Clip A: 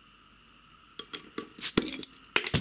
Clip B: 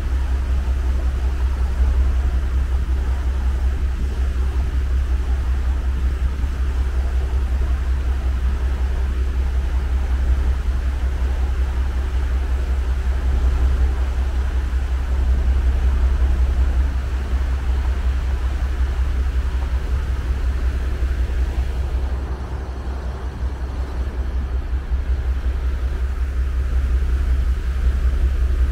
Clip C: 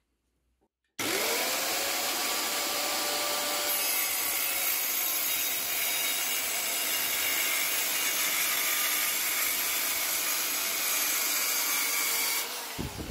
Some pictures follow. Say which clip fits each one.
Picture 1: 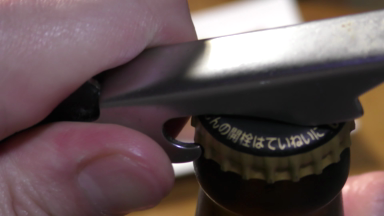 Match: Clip A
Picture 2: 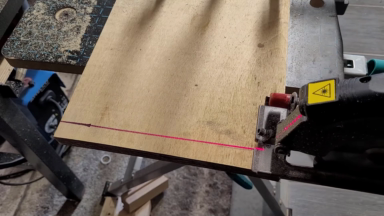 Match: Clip C